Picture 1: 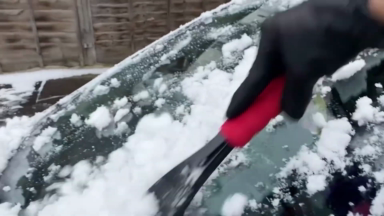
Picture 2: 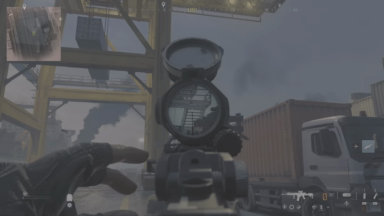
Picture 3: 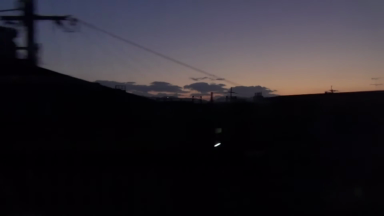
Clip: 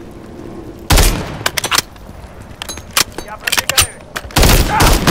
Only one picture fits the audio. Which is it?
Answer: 2